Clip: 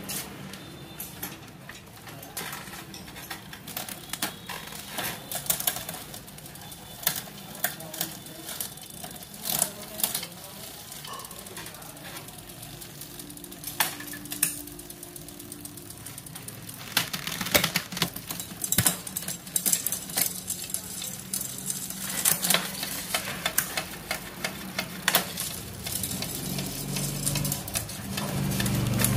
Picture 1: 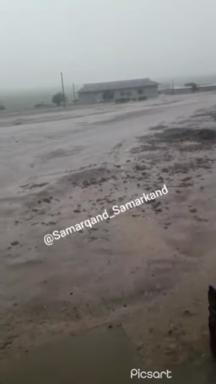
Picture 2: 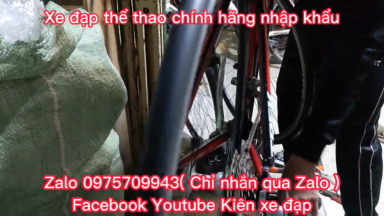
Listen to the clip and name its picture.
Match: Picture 2